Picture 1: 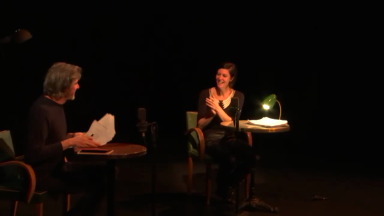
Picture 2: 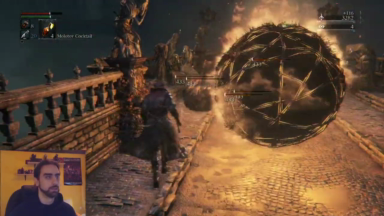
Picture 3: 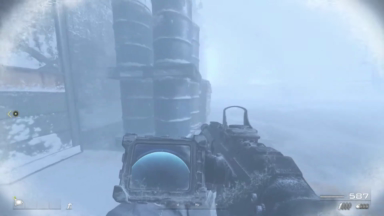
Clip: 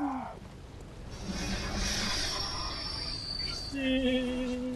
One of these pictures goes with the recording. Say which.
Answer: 2